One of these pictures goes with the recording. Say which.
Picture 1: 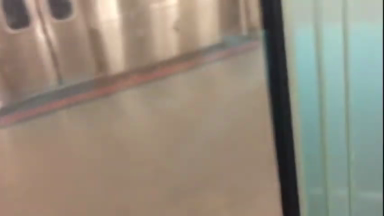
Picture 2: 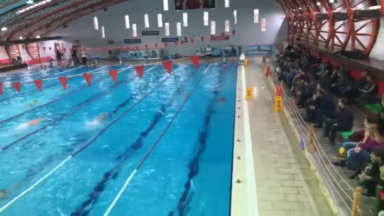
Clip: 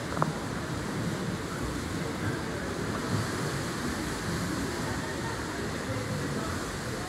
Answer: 2